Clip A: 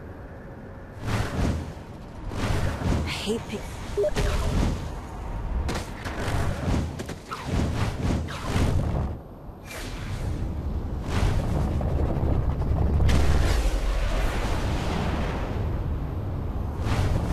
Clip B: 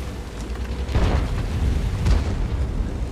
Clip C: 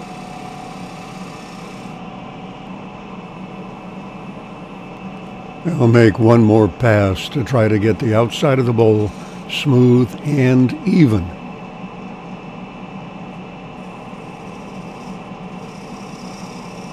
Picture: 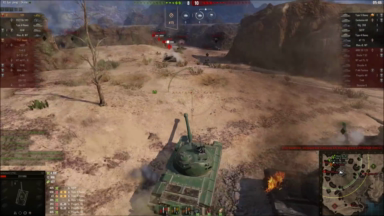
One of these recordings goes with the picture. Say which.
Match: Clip B